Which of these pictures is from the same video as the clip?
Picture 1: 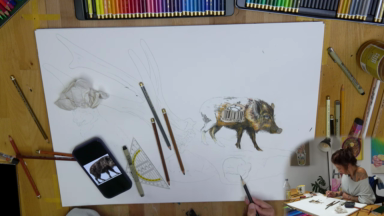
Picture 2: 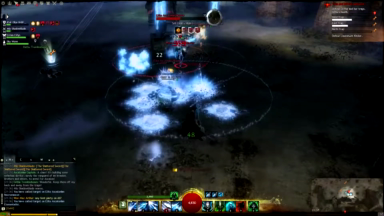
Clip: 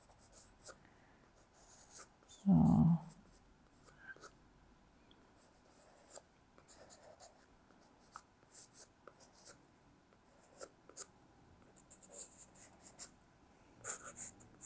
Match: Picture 1